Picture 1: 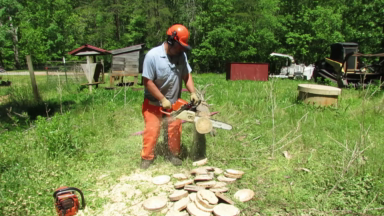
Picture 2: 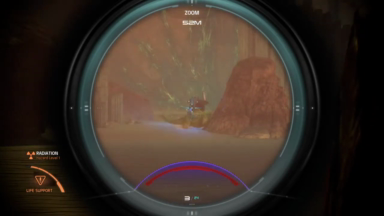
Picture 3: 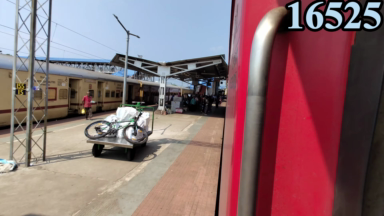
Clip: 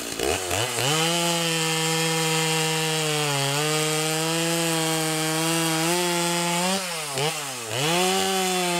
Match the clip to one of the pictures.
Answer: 1